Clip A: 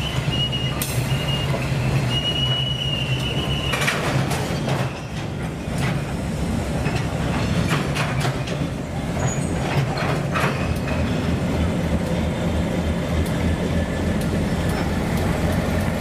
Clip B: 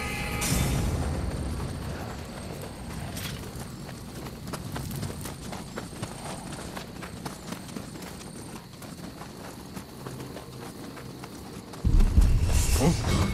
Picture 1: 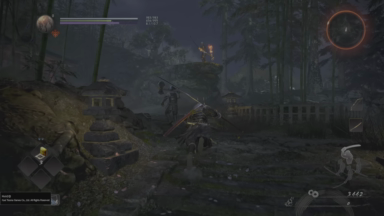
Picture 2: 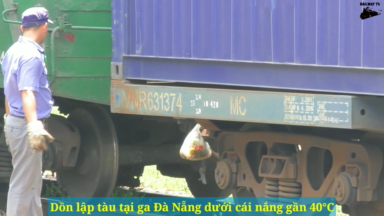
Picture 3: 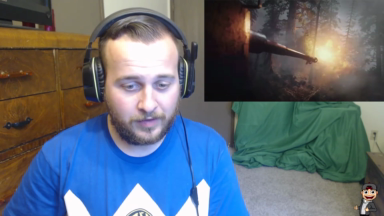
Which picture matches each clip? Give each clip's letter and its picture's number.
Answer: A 2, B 1